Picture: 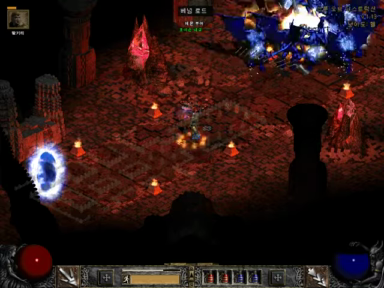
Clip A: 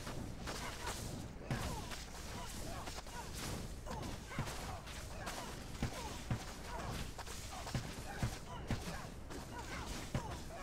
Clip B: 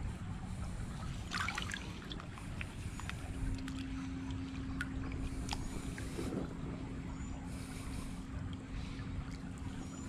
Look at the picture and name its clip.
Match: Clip A